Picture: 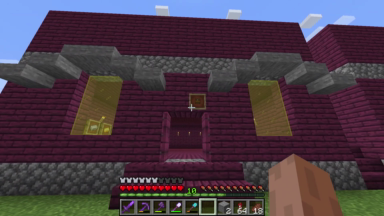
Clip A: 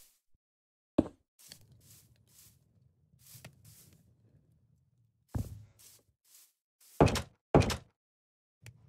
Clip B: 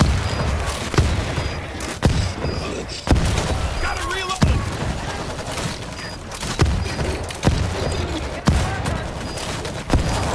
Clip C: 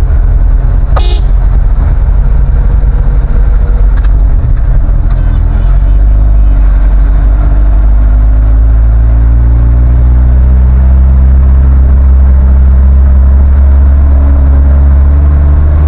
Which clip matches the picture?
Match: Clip A